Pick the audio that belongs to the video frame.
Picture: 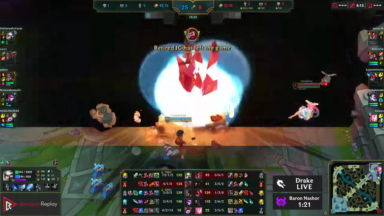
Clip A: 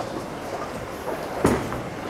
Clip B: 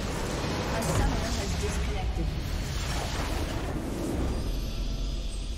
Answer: B